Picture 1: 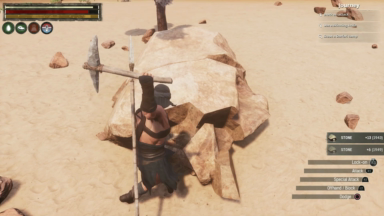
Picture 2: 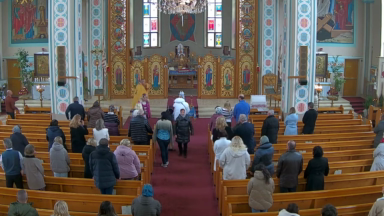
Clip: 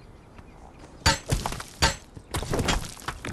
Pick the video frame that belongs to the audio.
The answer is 1